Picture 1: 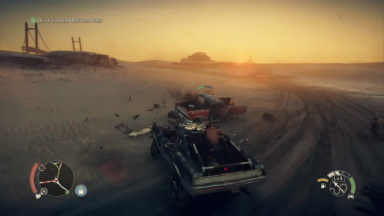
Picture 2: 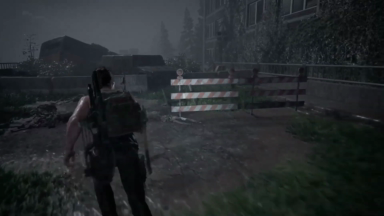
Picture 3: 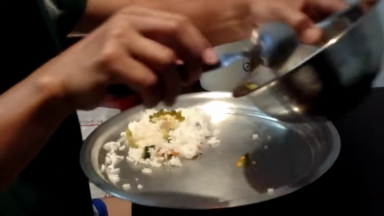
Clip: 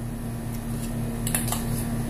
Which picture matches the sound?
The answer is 3